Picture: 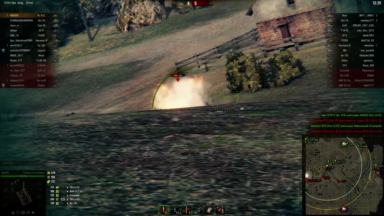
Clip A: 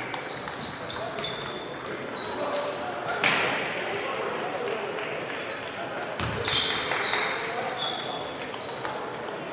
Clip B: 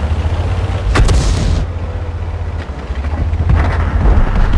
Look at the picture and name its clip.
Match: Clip B